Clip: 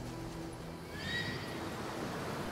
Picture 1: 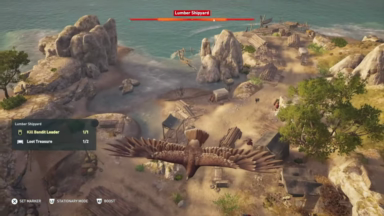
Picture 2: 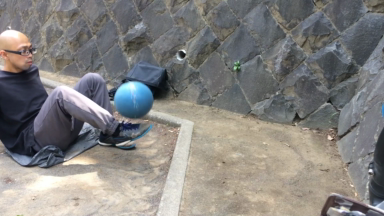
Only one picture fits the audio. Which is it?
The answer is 1